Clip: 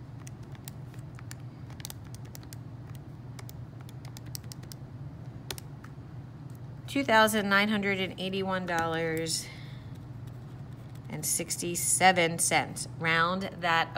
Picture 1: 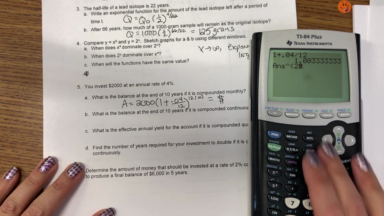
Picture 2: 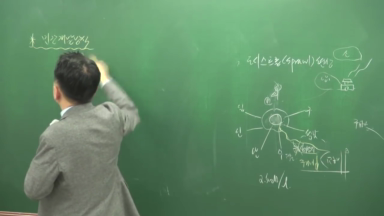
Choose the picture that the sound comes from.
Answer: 1